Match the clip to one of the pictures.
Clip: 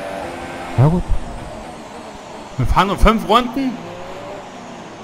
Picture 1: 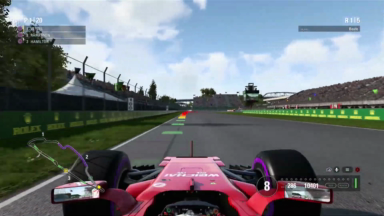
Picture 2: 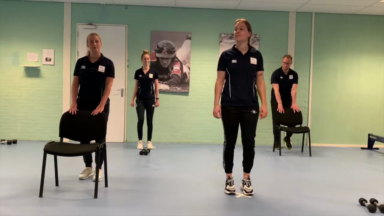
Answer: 1